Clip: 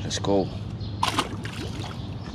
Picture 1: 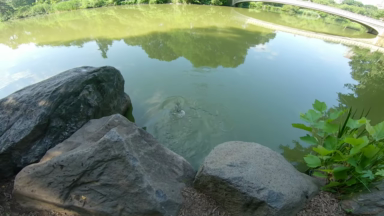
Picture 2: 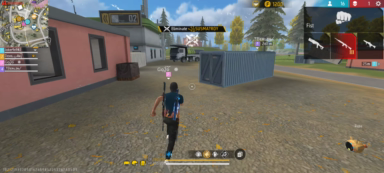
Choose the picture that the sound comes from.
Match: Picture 1